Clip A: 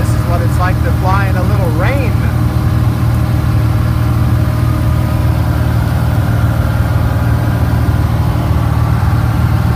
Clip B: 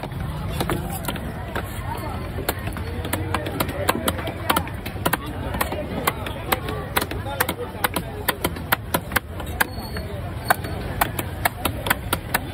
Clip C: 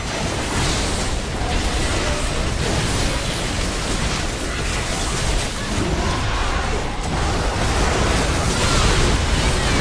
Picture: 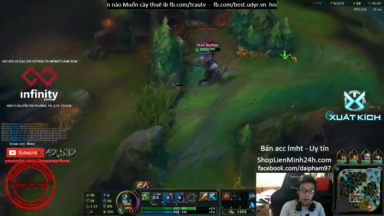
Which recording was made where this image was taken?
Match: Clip C